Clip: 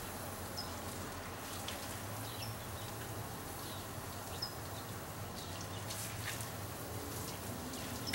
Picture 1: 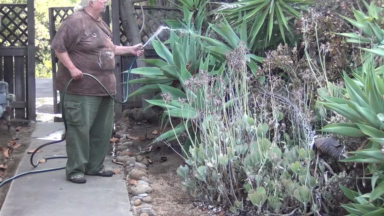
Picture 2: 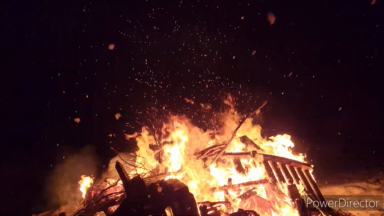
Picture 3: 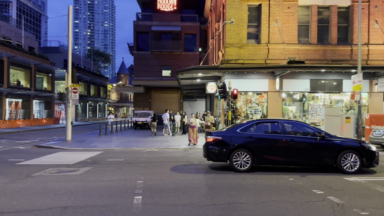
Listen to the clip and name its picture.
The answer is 1